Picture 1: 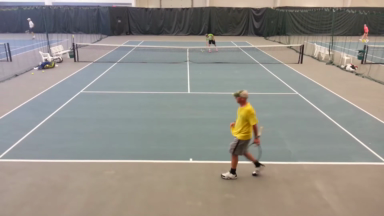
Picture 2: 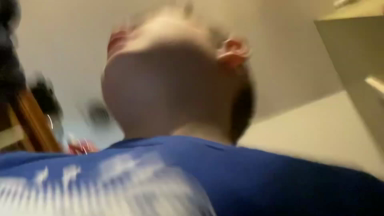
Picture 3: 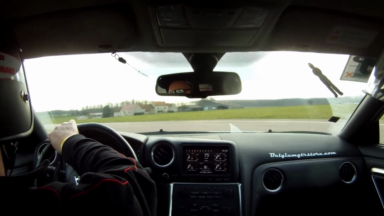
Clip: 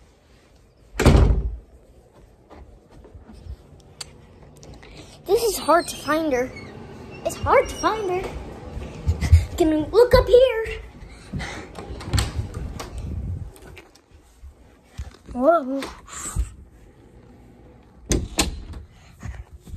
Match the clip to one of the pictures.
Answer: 2